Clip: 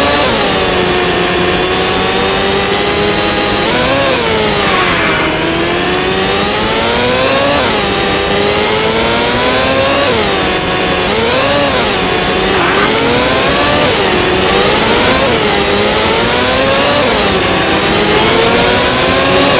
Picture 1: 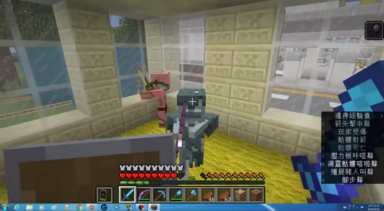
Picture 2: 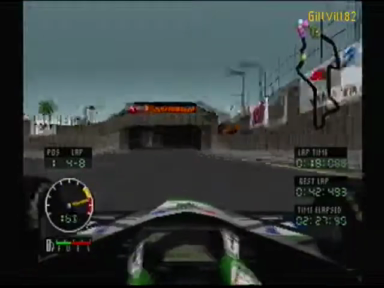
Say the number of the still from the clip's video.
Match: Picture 2